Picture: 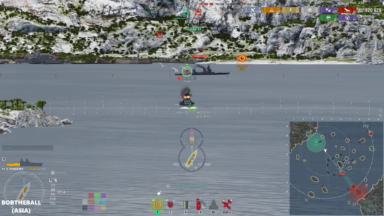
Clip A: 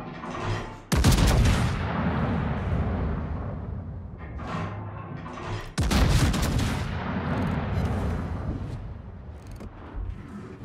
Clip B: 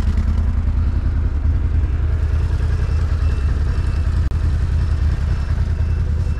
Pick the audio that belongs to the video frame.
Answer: A